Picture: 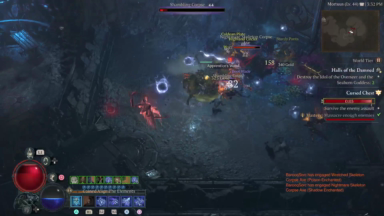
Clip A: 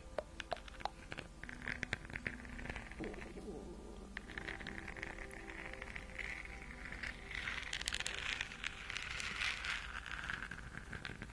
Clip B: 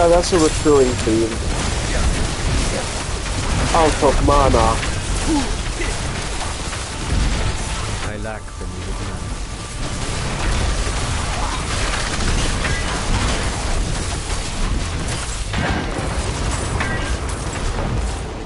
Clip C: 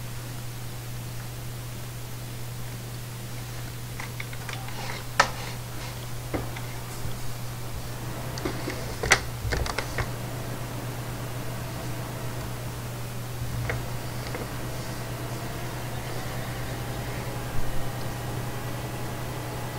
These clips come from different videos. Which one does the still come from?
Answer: B